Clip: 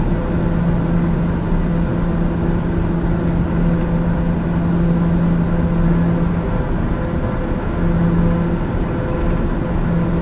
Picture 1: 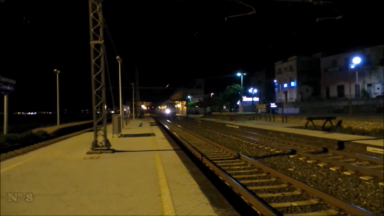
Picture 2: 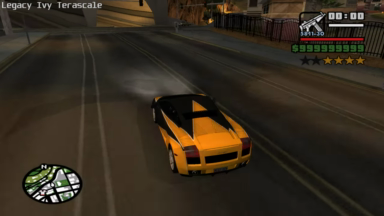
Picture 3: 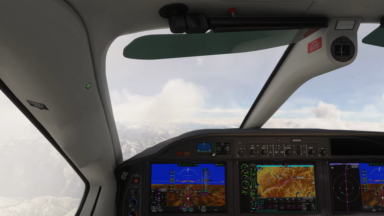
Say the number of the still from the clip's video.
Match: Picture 3